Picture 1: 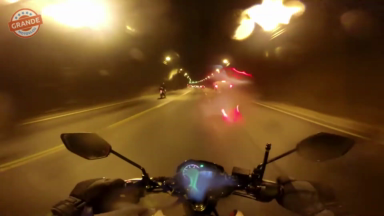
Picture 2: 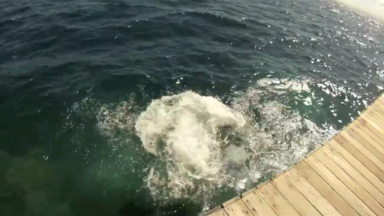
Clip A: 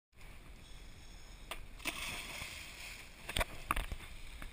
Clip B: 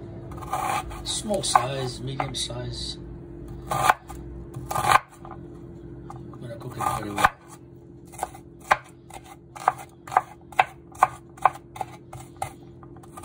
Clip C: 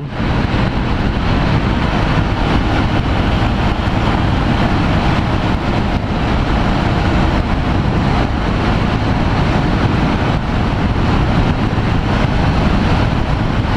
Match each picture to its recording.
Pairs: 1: C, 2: A